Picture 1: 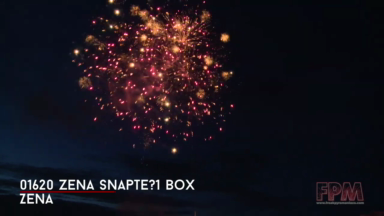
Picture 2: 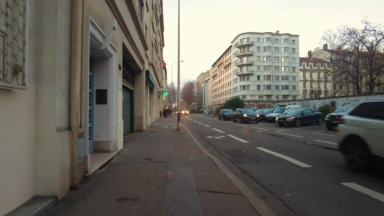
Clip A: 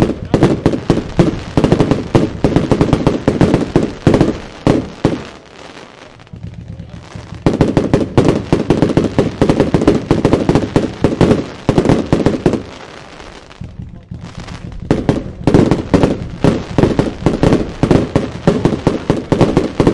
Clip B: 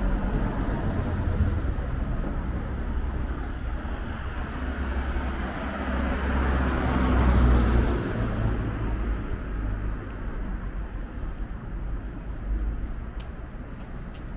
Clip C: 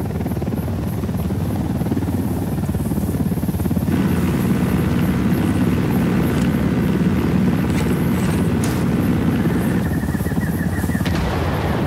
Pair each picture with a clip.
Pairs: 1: A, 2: B